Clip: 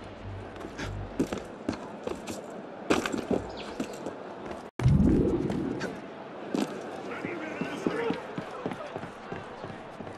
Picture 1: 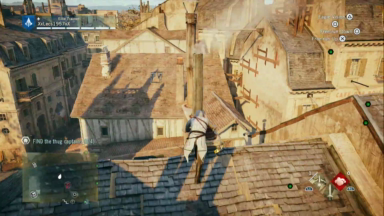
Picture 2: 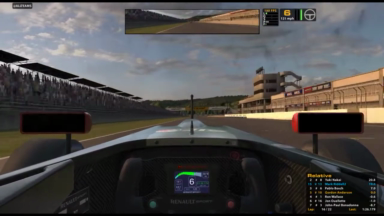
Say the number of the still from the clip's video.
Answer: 1